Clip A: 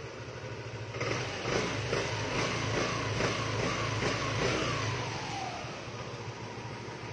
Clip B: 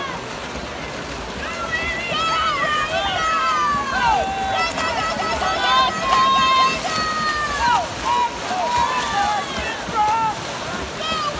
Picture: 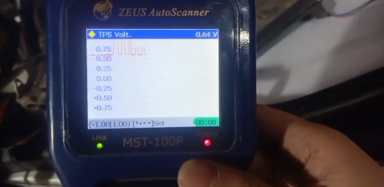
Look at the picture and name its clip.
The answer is A